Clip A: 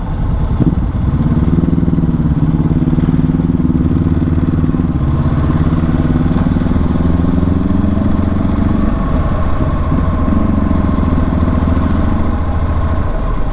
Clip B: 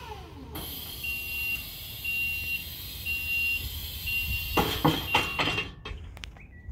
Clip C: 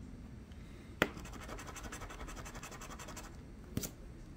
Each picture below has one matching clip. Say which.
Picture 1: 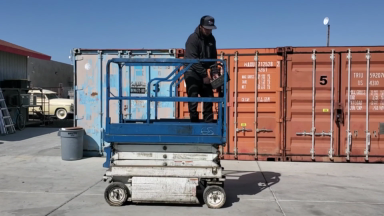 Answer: B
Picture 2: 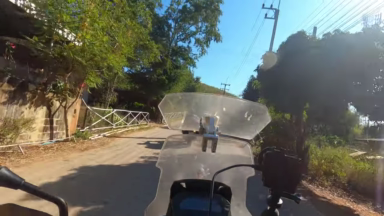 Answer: A